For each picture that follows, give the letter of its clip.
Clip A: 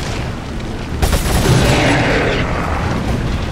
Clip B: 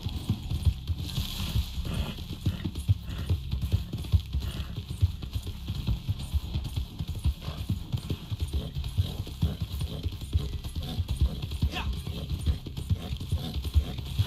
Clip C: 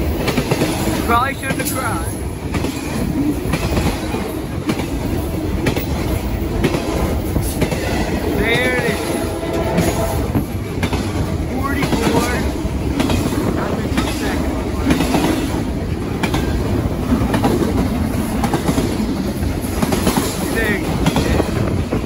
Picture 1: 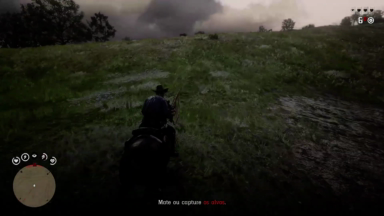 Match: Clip B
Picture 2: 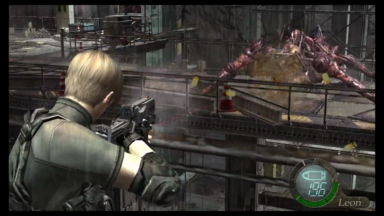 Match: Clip A